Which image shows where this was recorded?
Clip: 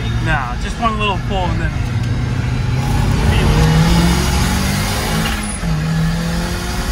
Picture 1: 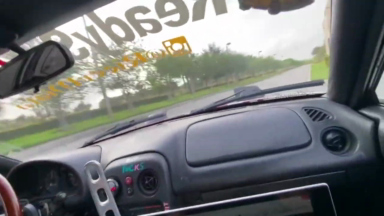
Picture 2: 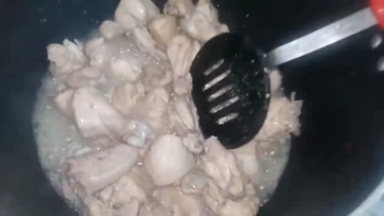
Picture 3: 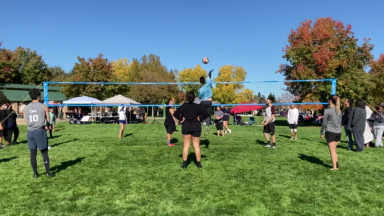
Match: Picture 1